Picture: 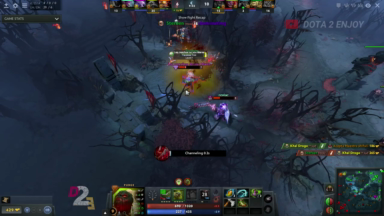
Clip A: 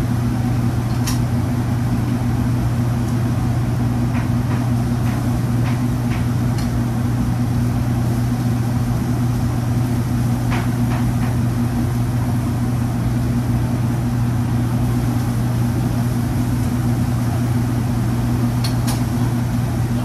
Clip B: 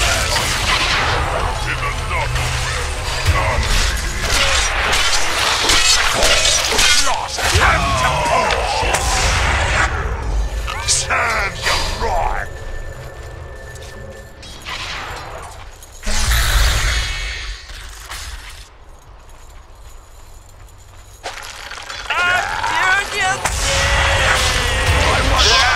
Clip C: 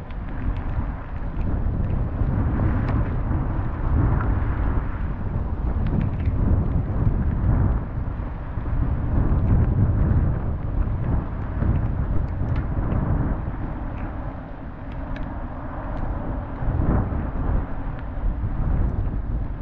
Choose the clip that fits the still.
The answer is B